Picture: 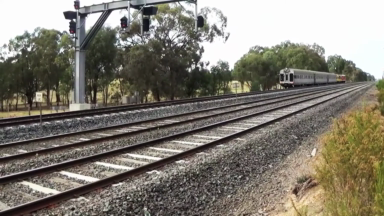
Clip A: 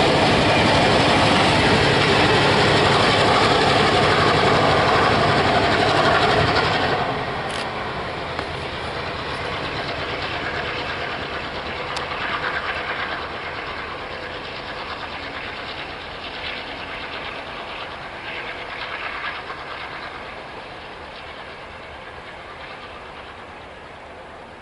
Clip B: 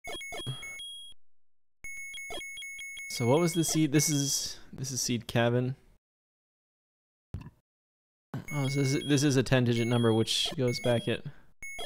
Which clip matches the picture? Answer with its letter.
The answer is A